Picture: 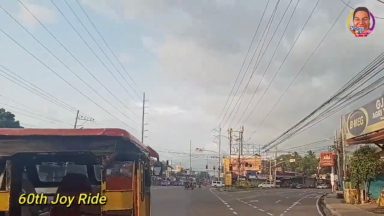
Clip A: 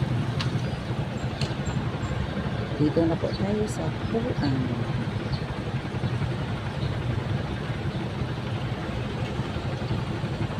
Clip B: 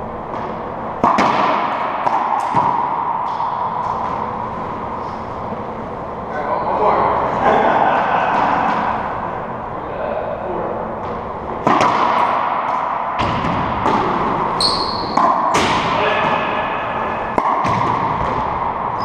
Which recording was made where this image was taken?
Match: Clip A